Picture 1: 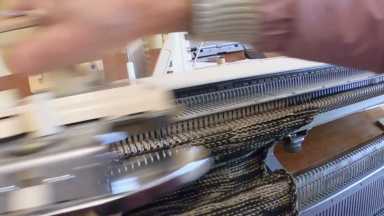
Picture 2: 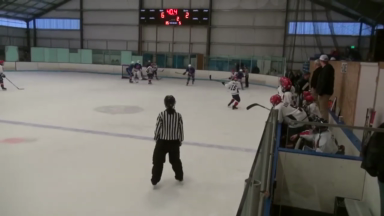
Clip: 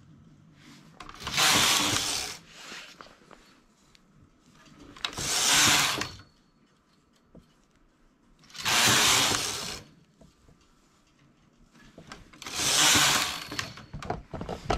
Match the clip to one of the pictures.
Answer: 1